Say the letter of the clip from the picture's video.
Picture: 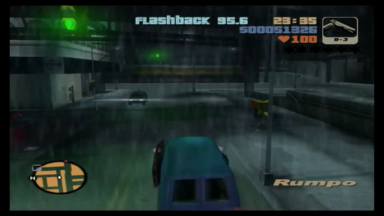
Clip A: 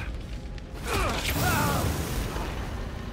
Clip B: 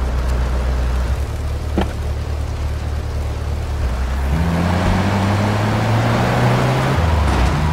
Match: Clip B